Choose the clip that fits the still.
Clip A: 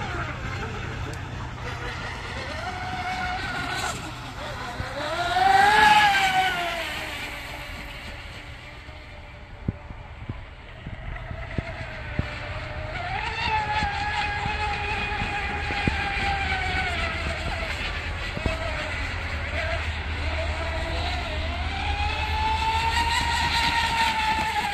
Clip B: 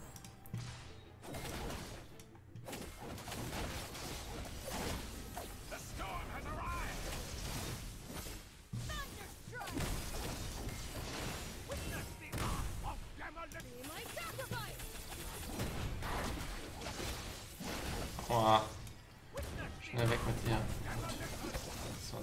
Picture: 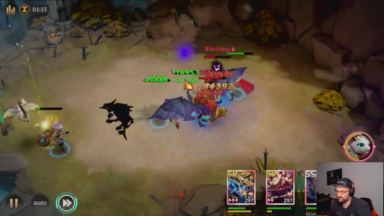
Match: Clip B